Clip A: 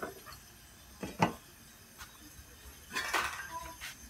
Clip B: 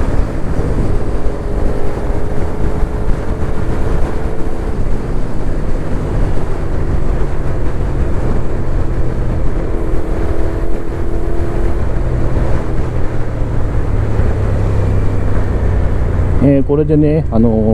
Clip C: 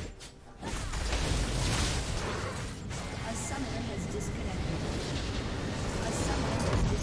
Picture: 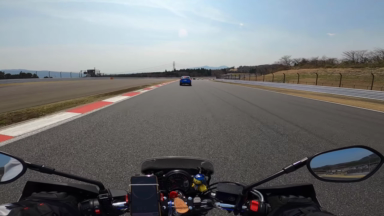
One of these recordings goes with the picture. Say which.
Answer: B